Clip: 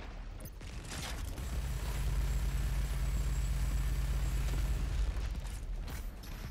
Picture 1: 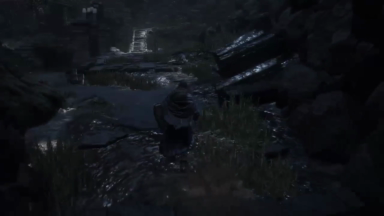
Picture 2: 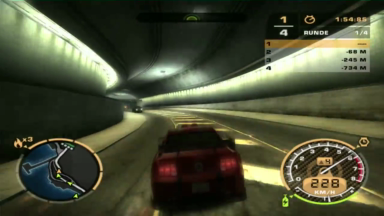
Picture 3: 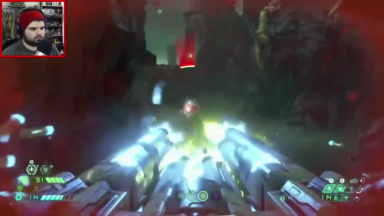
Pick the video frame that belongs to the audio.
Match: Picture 3